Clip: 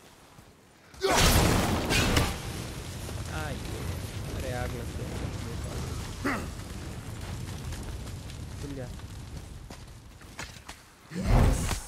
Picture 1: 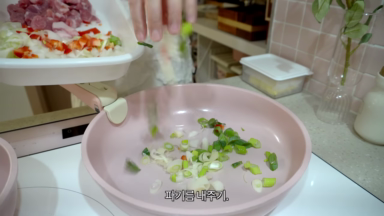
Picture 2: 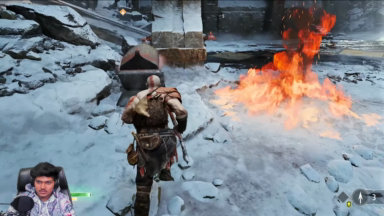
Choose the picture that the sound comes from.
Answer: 2